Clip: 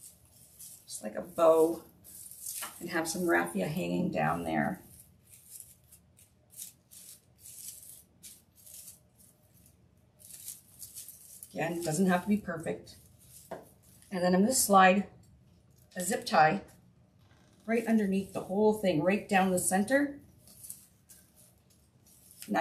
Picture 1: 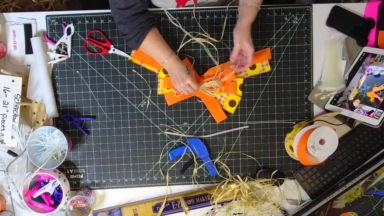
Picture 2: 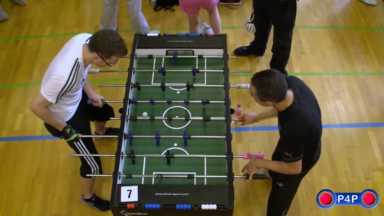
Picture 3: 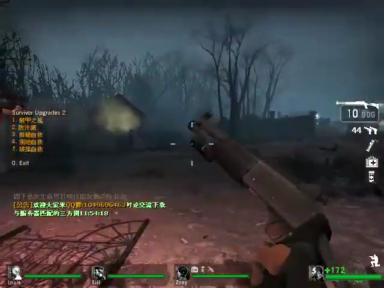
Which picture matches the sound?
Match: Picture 1